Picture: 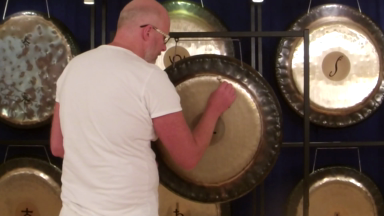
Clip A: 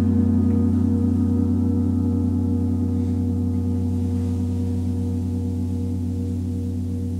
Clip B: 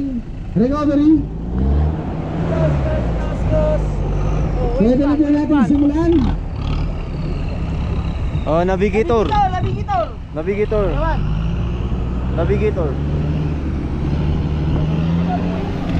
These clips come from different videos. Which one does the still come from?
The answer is A